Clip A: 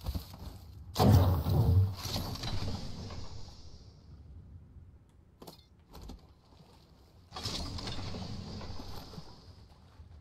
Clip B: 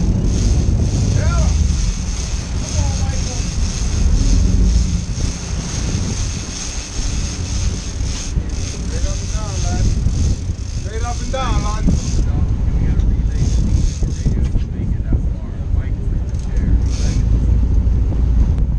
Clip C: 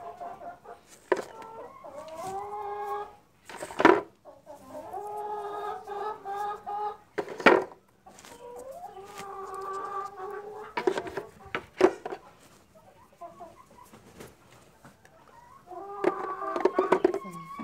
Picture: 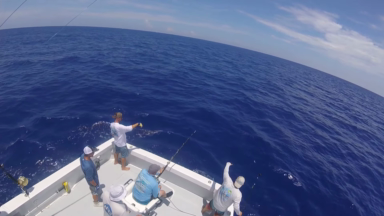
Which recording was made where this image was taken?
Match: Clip B